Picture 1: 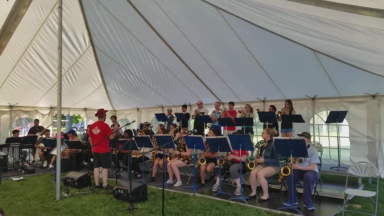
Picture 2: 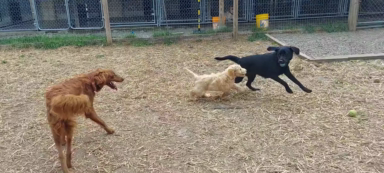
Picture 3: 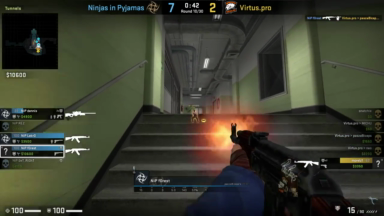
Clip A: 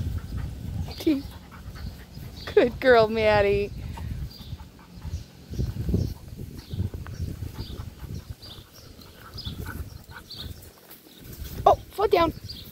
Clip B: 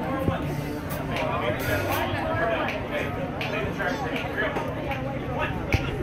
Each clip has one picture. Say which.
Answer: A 2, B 1